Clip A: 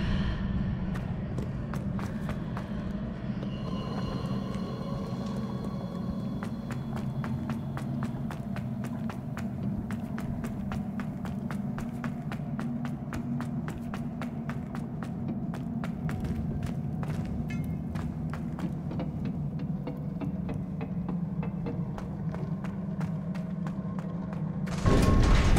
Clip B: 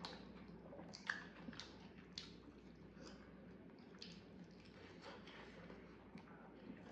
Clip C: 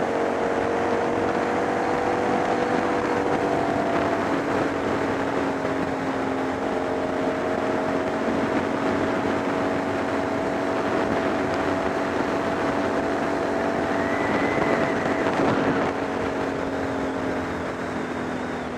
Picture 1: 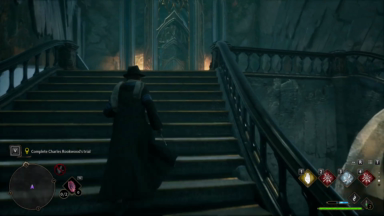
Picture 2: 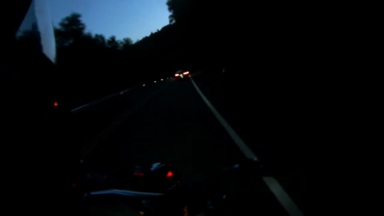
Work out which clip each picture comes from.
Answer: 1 A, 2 C